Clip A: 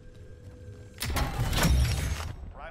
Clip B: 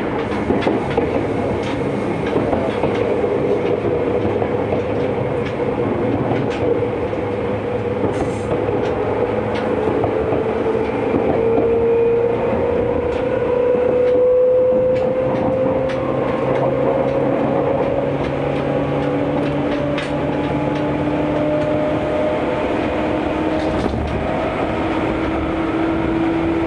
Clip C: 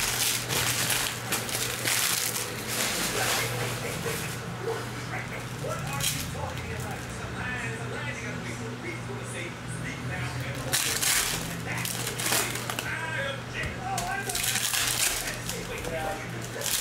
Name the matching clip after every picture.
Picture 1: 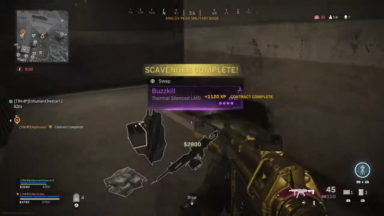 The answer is A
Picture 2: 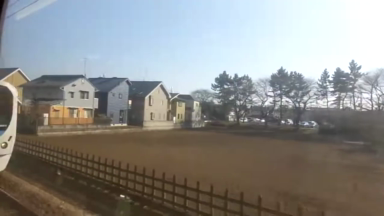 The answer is B